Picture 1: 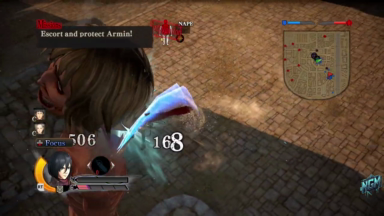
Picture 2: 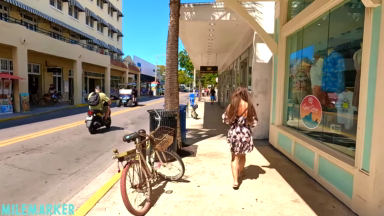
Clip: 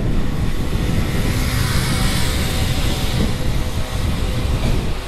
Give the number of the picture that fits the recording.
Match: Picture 2